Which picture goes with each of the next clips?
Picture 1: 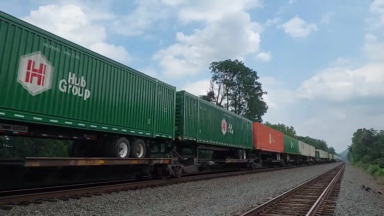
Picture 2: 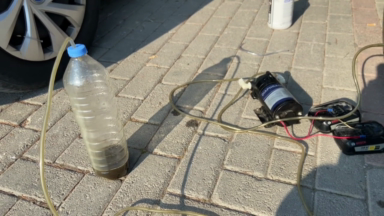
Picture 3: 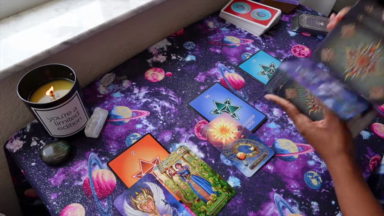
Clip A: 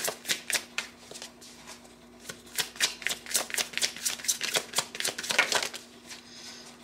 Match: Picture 3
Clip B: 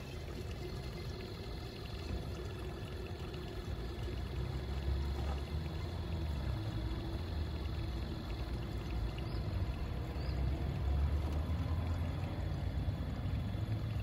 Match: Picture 2